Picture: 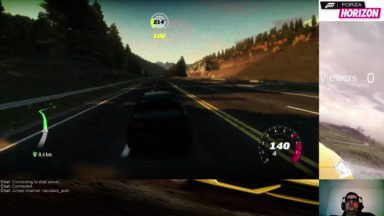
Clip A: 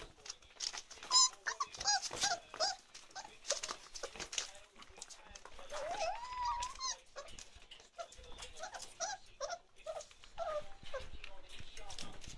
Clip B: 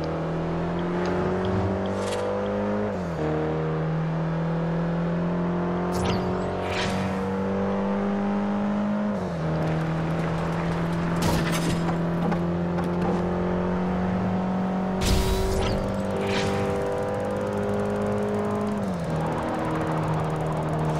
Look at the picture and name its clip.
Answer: B